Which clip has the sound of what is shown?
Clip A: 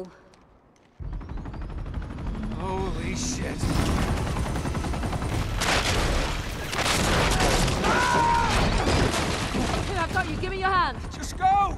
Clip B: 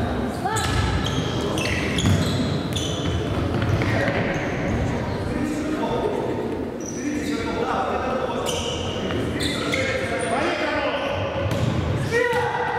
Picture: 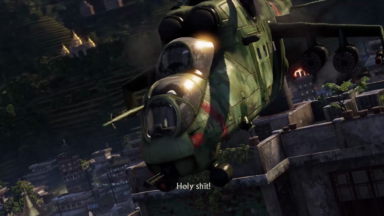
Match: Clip A